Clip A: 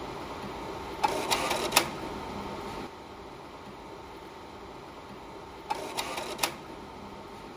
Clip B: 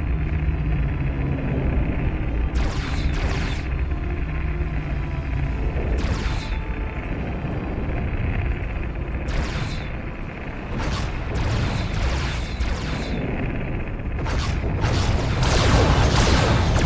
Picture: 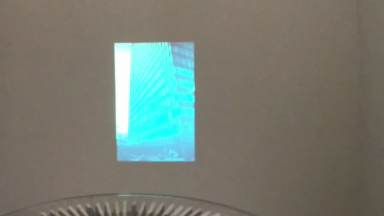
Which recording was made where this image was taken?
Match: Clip A